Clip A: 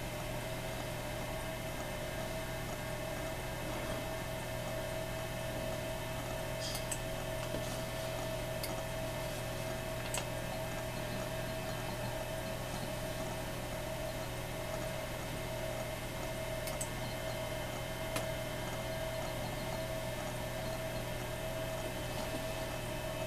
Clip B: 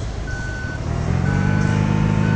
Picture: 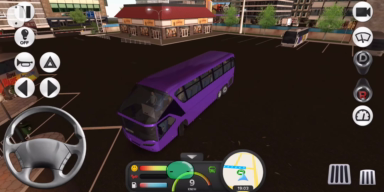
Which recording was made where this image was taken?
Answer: B